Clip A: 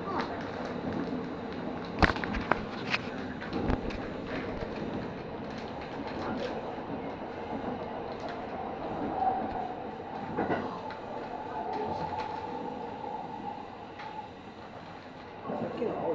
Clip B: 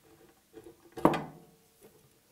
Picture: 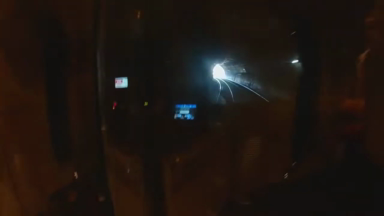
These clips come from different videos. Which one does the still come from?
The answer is A